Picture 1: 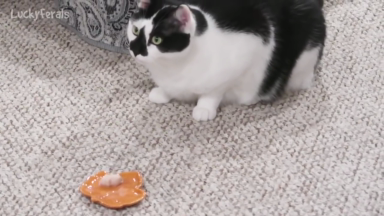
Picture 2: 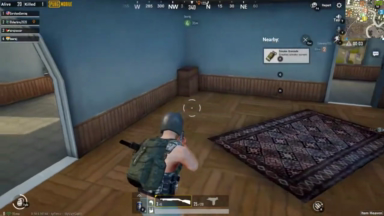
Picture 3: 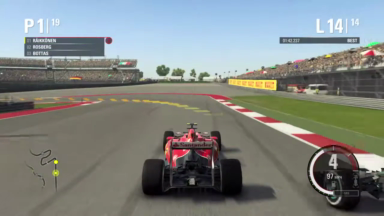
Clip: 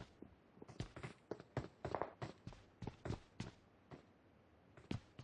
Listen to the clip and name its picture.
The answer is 2